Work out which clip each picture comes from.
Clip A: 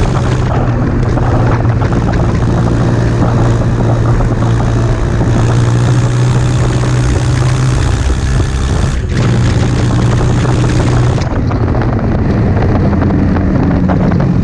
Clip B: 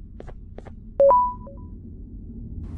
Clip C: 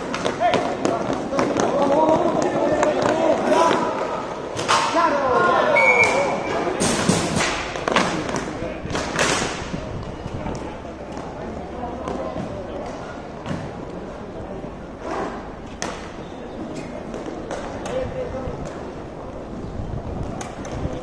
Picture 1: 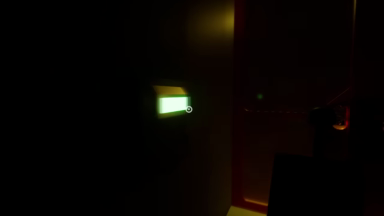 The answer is B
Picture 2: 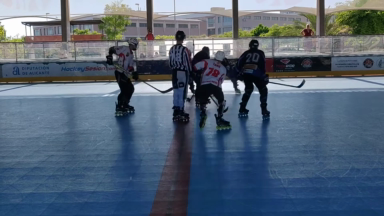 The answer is C